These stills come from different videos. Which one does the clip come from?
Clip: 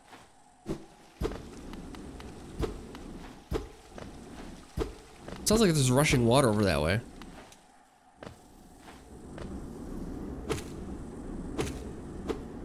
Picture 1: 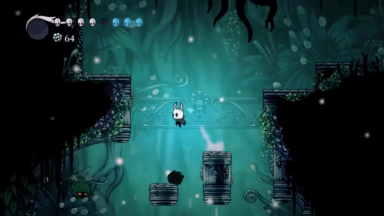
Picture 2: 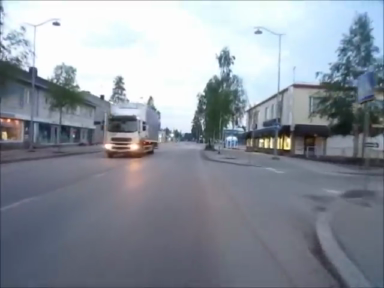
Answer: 1